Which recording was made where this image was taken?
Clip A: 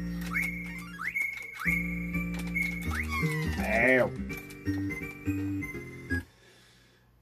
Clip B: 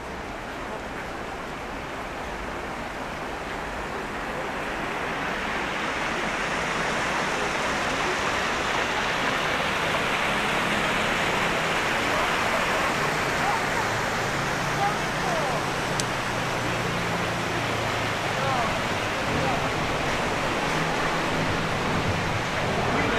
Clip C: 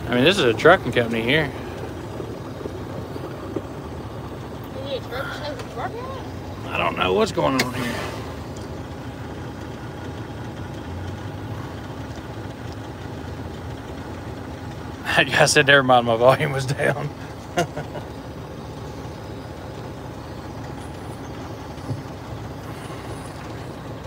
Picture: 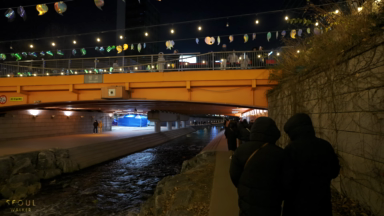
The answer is B